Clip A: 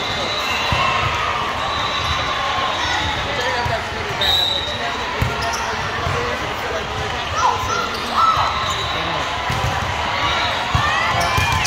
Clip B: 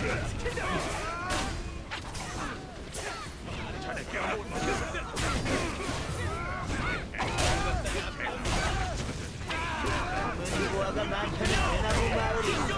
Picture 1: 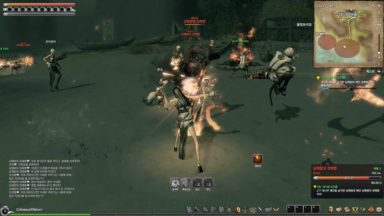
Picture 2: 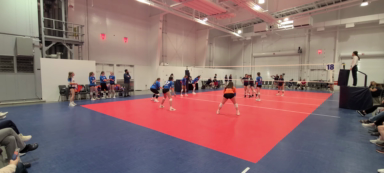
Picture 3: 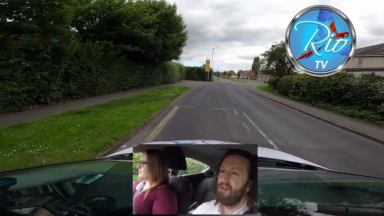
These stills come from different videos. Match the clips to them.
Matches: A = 2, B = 1